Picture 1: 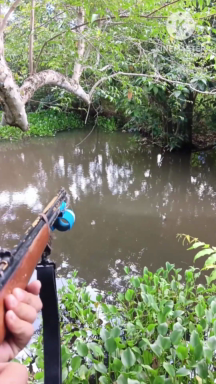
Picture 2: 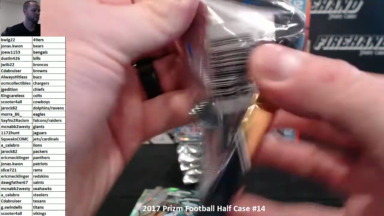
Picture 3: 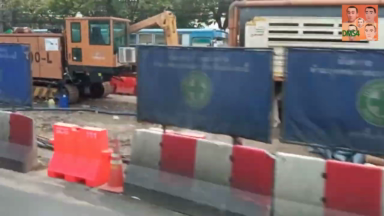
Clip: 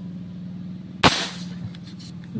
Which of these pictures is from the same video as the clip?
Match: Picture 1